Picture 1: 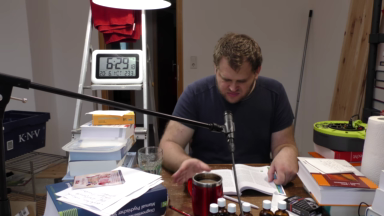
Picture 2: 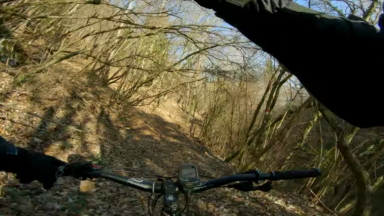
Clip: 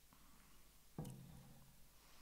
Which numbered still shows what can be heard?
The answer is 1